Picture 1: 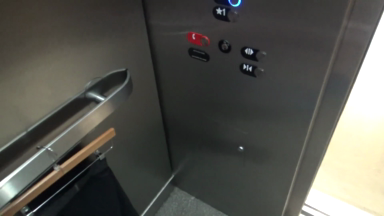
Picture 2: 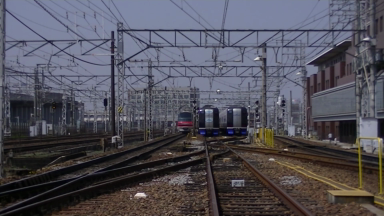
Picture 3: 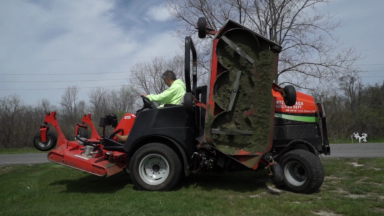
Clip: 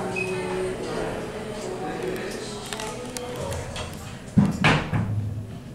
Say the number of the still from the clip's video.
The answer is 1